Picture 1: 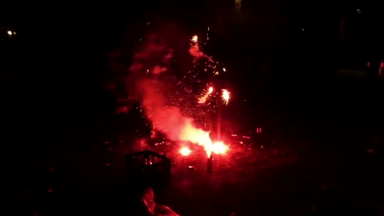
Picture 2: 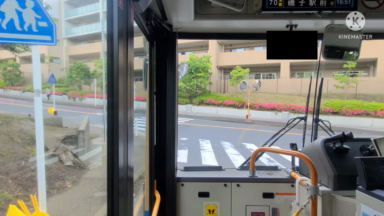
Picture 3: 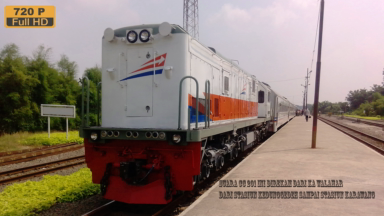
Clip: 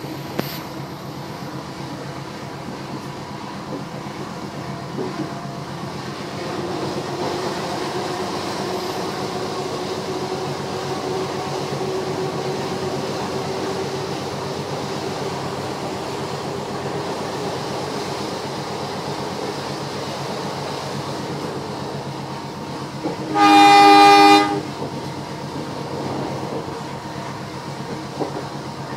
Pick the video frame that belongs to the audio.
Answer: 3